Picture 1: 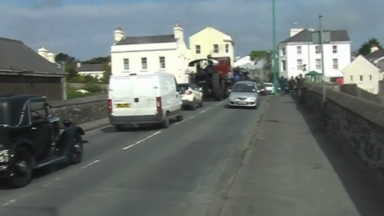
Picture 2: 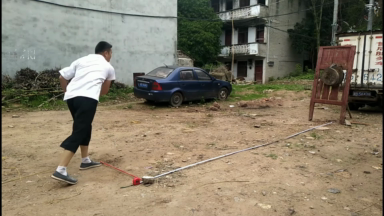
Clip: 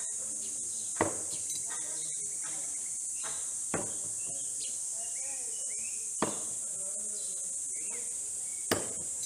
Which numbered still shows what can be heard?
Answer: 2